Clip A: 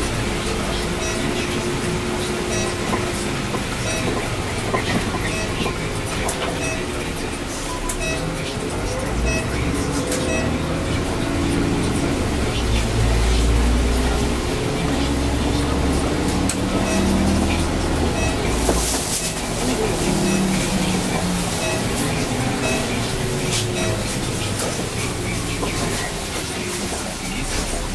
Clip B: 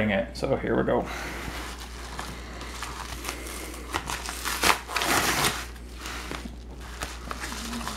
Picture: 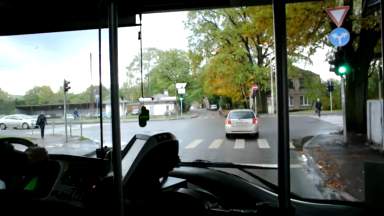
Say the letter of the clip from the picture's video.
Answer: A